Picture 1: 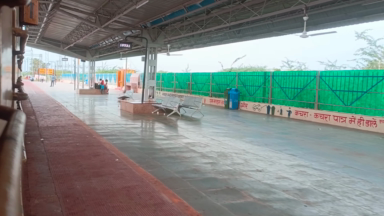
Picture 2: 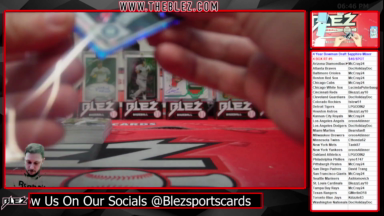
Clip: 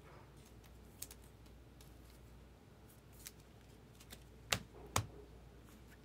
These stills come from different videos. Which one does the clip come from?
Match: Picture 2